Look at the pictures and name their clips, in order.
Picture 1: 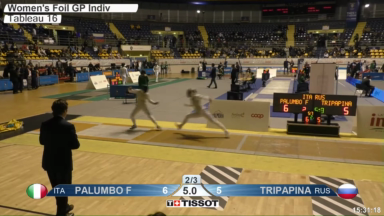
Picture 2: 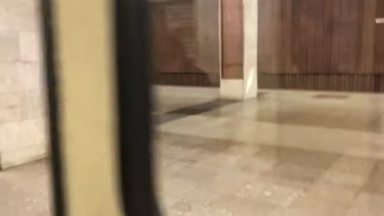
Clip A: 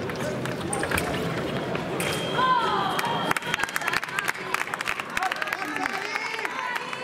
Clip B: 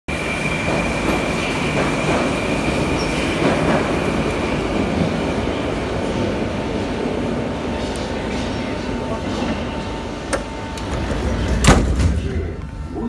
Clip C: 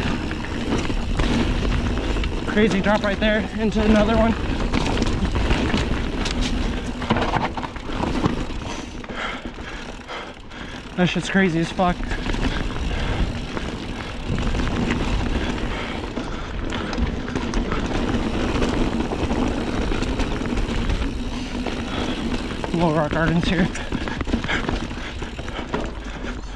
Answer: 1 A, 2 B